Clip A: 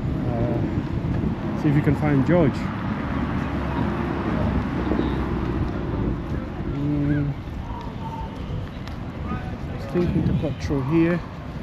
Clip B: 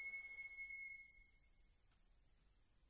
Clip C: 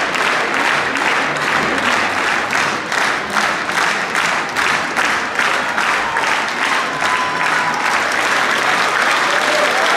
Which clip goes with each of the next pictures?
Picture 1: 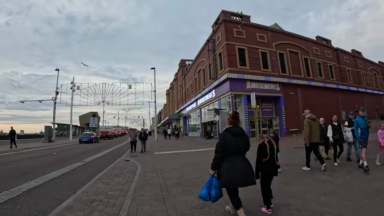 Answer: A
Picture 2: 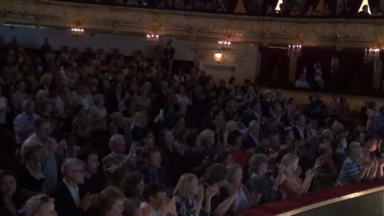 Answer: C